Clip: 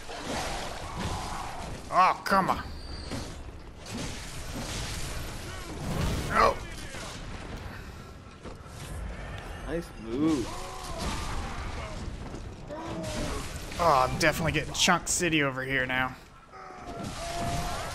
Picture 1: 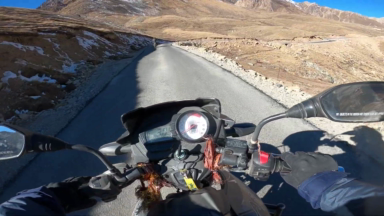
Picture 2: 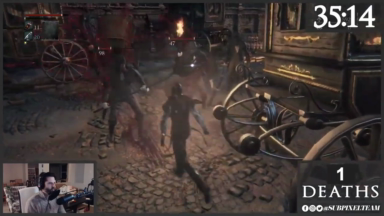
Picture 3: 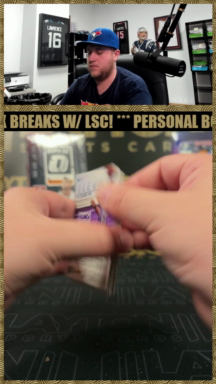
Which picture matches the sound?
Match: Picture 2